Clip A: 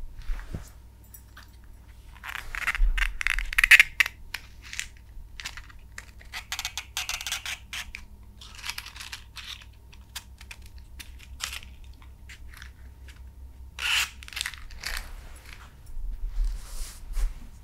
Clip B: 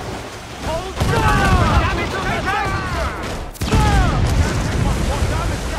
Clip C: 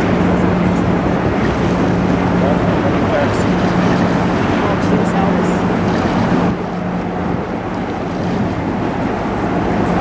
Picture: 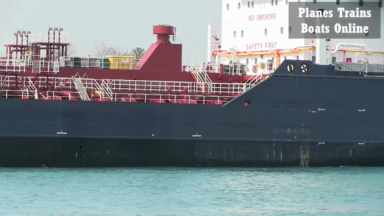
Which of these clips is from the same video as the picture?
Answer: C